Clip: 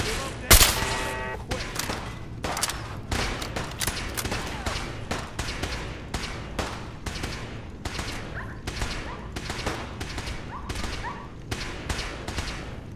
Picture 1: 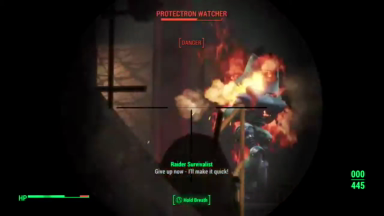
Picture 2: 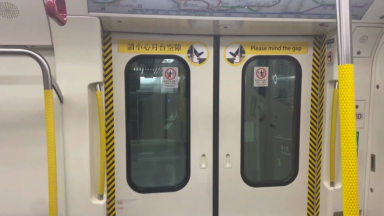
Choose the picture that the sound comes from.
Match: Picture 1